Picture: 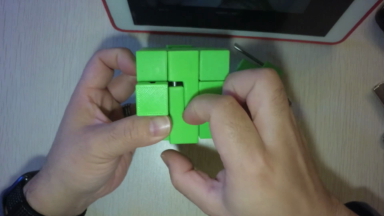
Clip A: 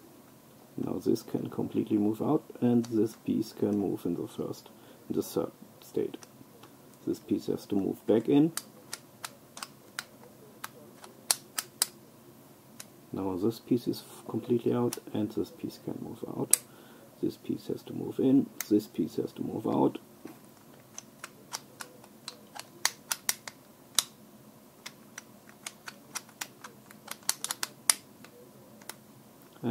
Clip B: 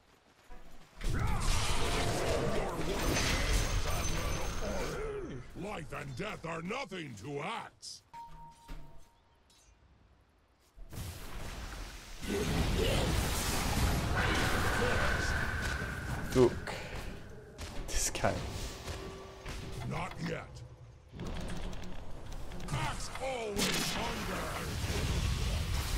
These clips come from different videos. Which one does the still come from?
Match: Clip A